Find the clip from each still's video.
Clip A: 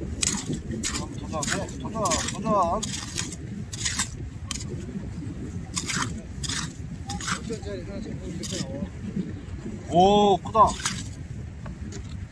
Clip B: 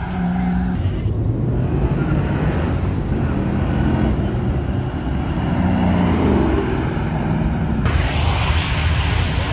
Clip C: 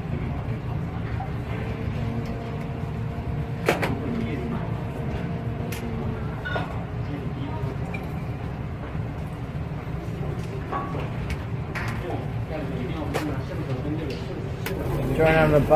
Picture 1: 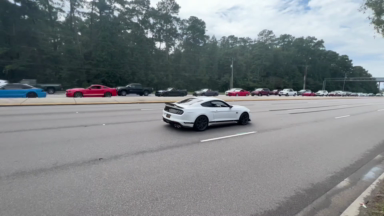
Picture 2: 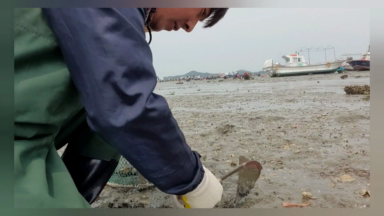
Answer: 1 B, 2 A